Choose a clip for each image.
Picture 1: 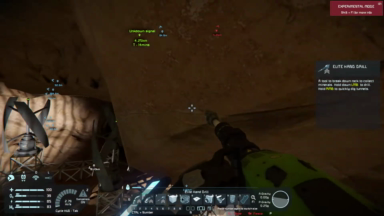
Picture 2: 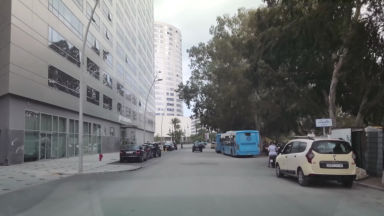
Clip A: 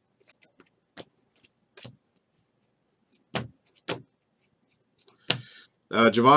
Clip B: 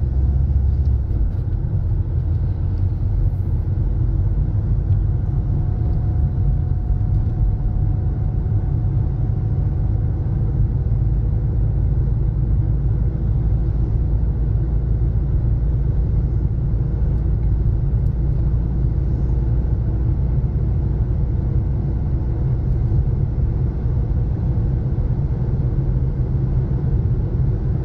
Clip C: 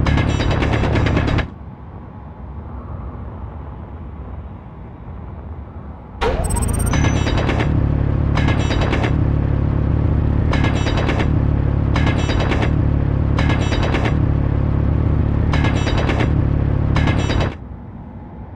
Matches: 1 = C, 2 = B